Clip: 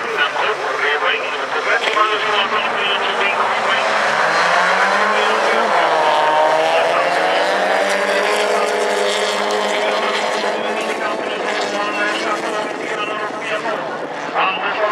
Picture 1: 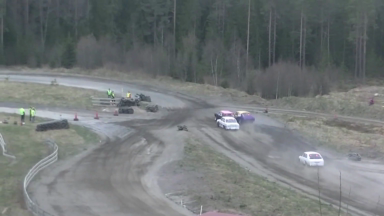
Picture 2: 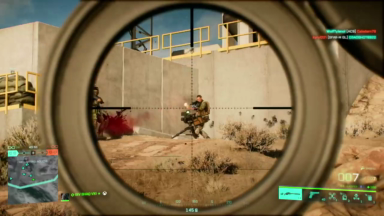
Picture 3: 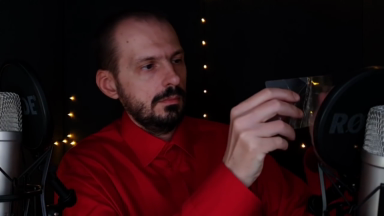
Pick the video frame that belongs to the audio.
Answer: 1